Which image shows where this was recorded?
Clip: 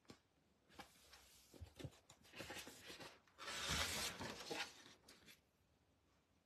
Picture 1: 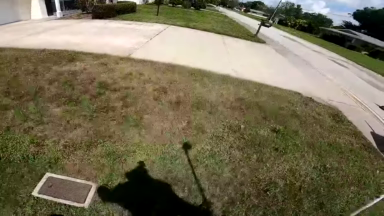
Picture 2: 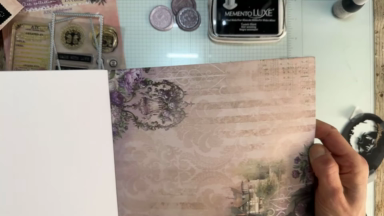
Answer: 2